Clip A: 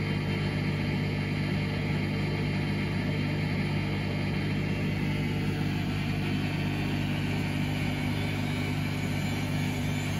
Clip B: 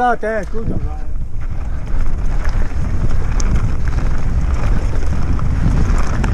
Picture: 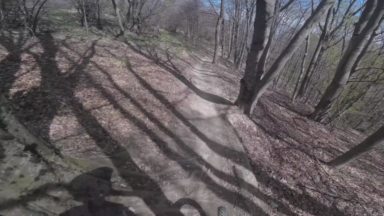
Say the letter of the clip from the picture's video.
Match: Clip B